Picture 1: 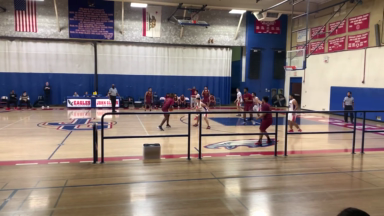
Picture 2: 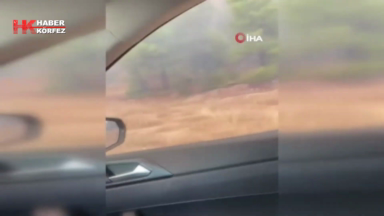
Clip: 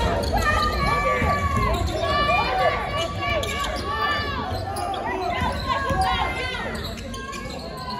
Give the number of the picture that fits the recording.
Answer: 1